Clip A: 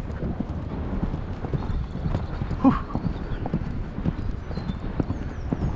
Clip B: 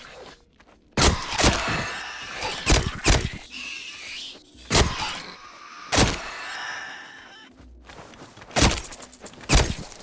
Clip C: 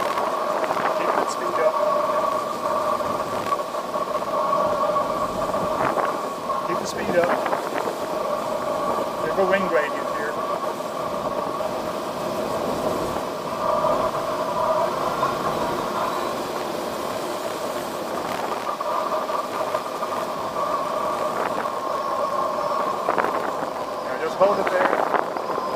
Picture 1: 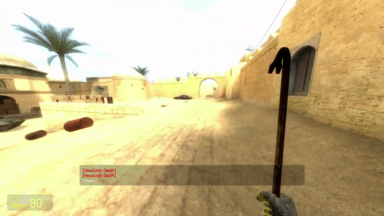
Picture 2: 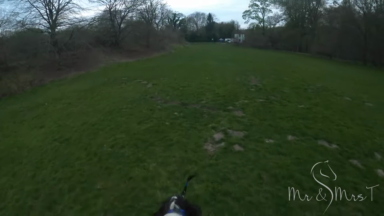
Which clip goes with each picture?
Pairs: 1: B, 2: A